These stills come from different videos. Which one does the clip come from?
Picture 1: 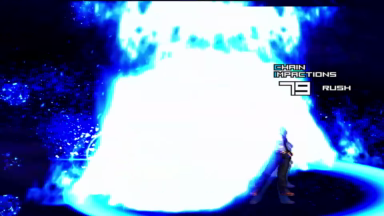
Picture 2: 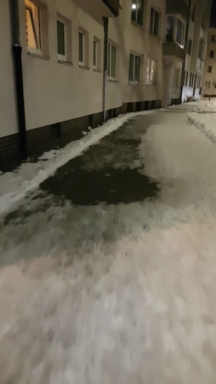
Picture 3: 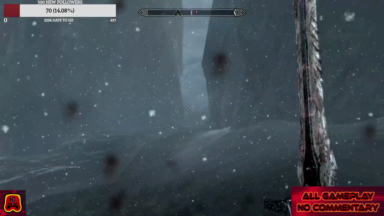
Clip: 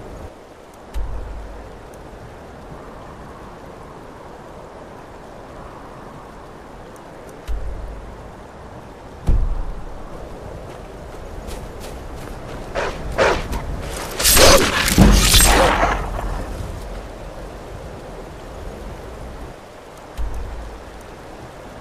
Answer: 3